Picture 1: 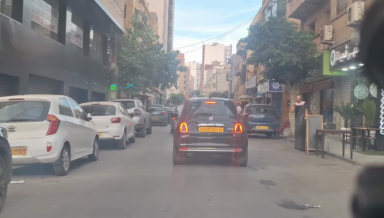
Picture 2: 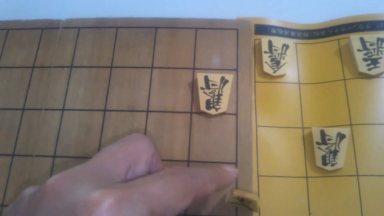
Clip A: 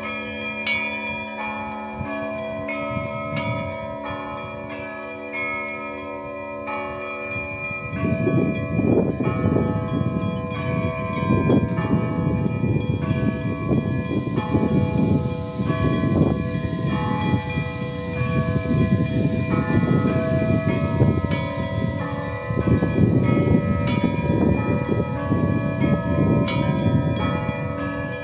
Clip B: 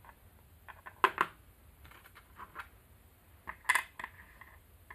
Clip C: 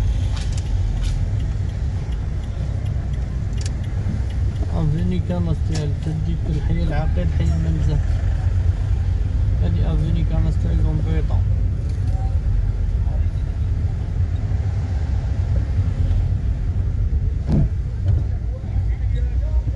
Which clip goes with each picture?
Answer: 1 C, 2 B